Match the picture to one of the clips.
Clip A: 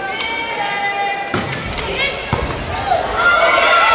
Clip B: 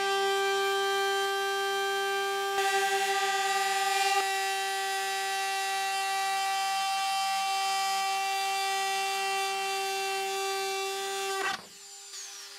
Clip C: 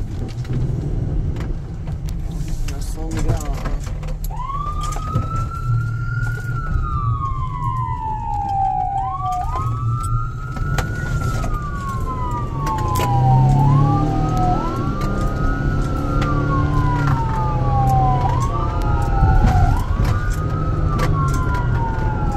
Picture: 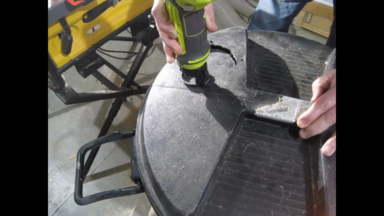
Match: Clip B